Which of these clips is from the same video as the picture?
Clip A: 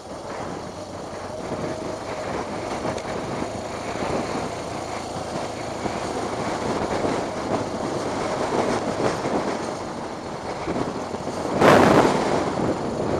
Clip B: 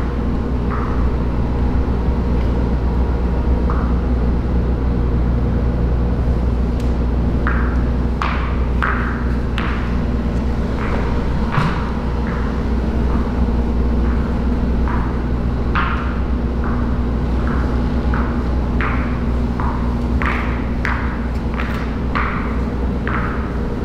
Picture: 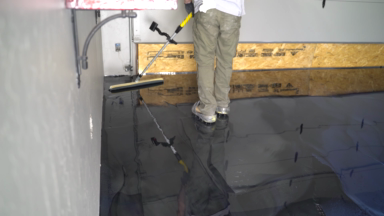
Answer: B